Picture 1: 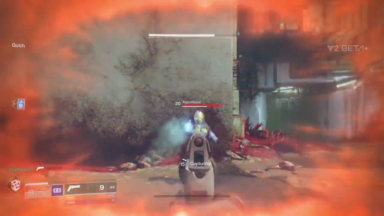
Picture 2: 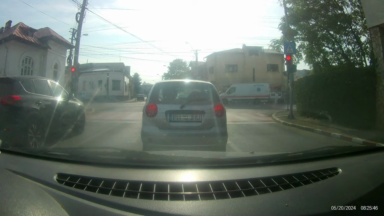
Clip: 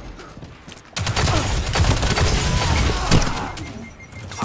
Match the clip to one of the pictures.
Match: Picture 1